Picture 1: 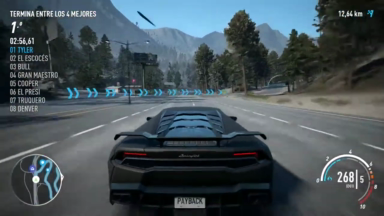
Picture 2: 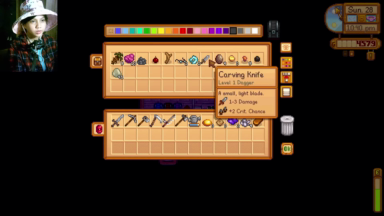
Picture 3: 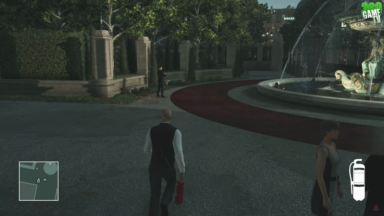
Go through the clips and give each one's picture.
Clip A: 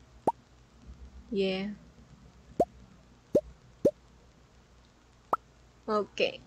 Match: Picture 2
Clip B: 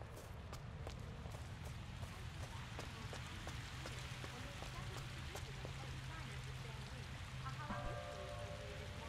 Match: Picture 3